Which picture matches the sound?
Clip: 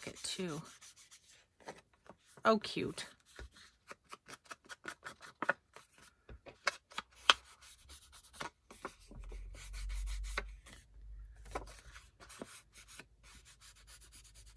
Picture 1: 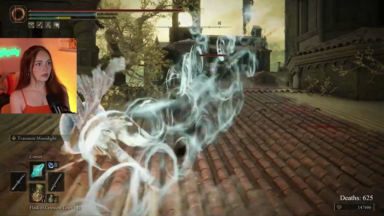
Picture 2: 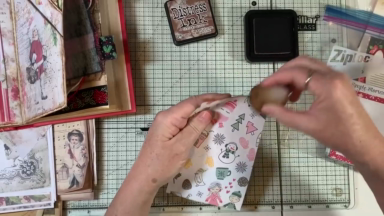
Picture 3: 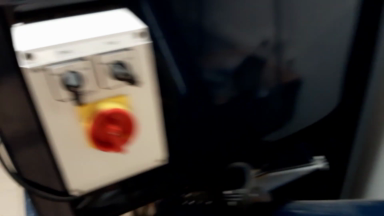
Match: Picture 2